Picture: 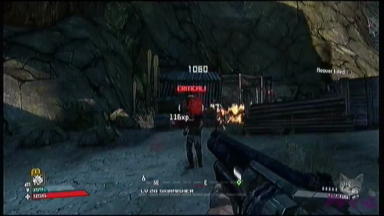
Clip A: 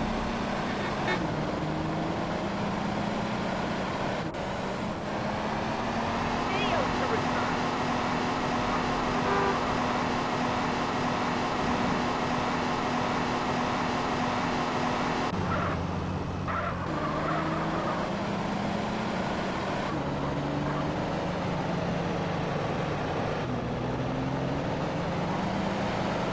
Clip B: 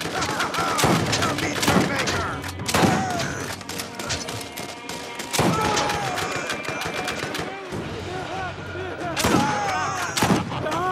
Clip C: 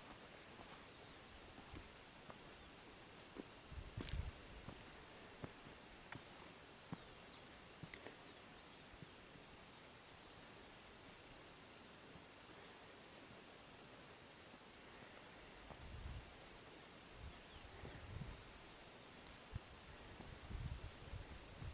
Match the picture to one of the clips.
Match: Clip B